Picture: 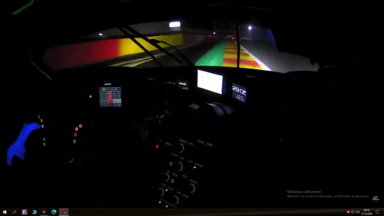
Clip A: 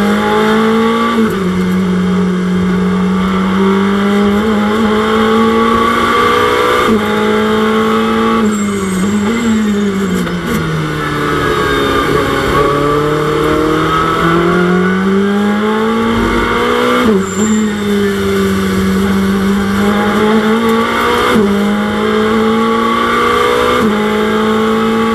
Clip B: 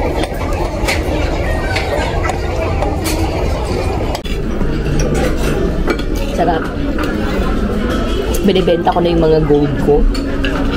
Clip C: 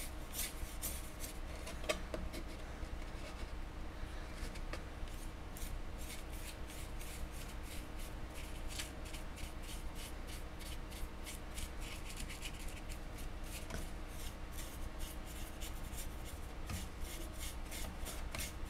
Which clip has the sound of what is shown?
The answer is A